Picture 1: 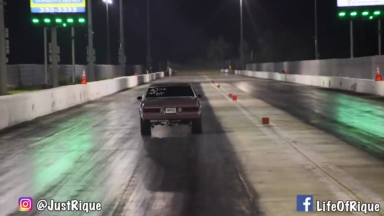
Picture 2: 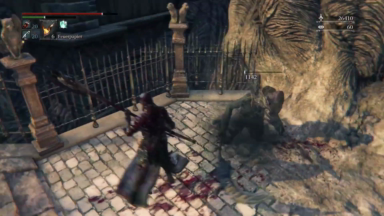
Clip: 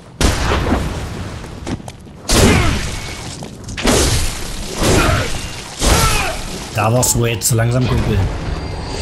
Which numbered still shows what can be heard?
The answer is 2